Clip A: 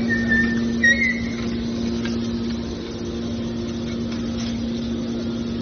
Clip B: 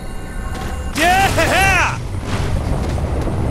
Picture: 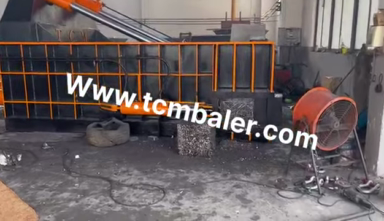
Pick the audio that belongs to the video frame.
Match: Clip A